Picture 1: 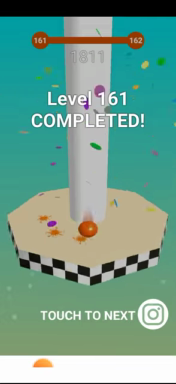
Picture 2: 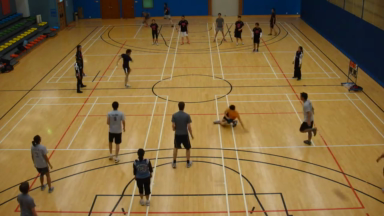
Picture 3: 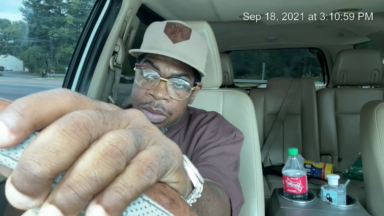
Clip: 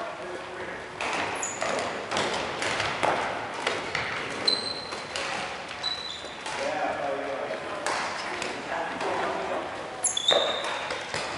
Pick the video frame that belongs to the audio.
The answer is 2